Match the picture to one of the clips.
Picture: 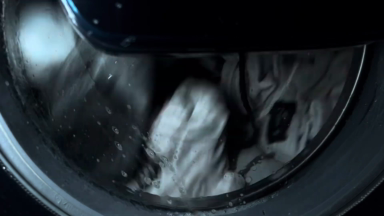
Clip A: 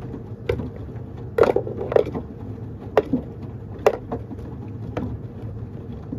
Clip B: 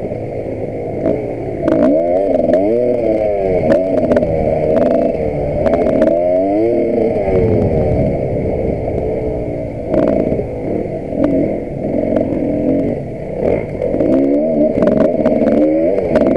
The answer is A